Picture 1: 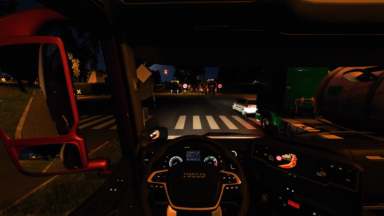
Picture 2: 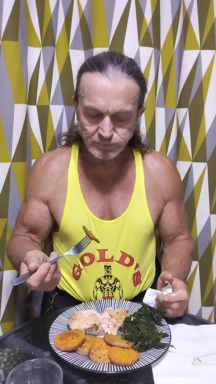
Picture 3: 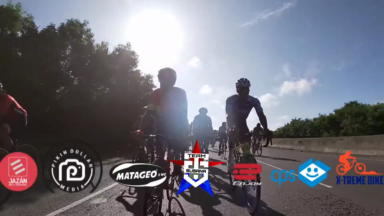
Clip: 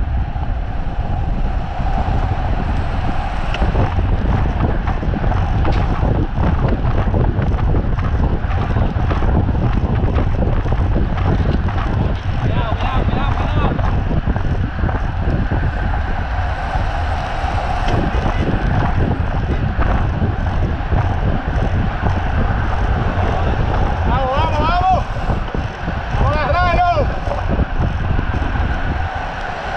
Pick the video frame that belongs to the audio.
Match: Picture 3